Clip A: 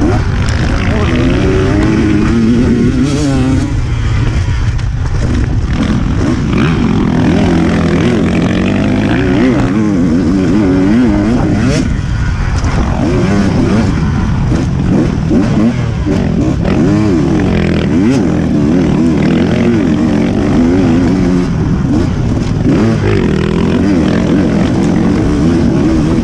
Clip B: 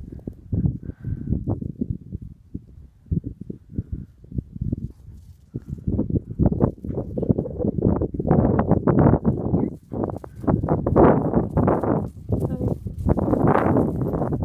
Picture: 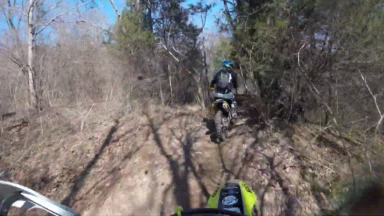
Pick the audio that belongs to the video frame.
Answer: A